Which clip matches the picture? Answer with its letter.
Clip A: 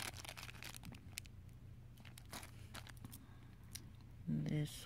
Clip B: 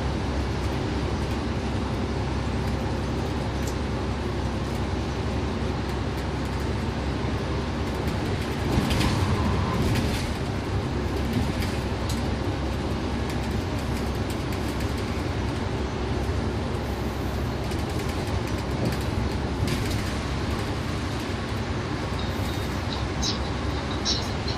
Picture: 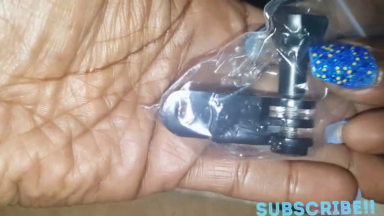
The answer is A